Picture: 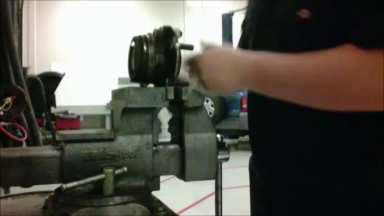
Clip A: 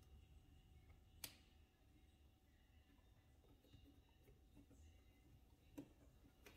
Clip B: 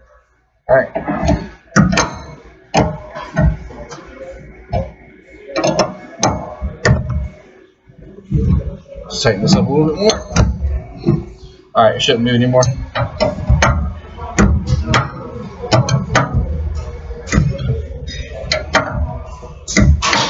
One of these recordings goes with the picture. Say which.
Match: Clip B